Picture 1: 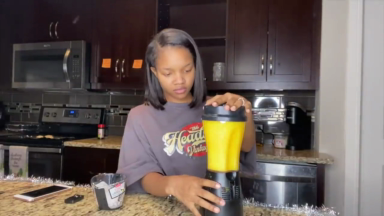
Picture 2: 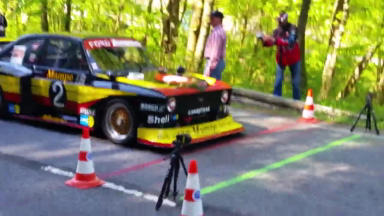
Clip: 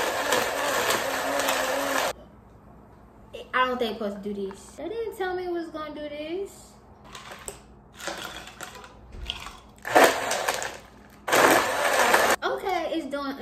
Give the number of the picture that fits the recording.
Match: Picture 1